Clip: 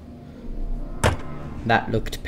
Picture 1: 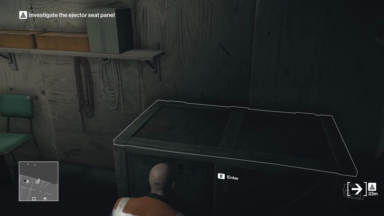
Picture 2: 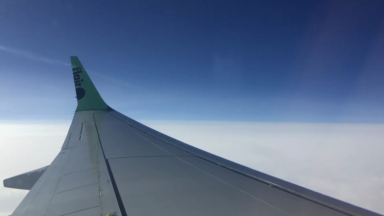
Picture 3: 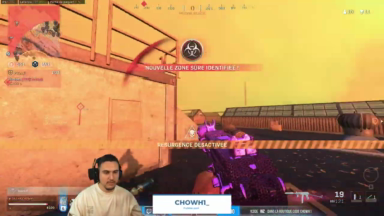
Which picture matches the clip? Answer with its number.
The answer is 1